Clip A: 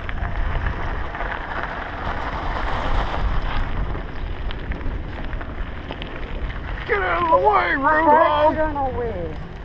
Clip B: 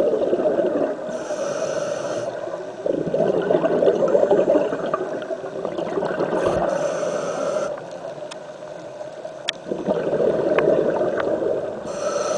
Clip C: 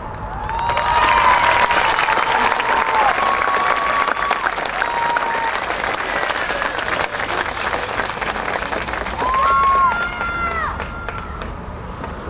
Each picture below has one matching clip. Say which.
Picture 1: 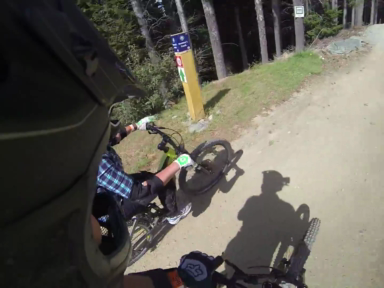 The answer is A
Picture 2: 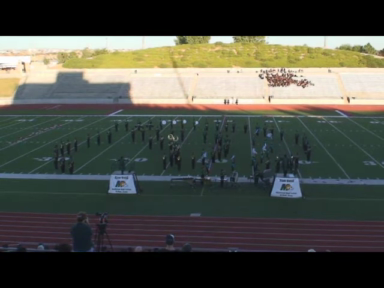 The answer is C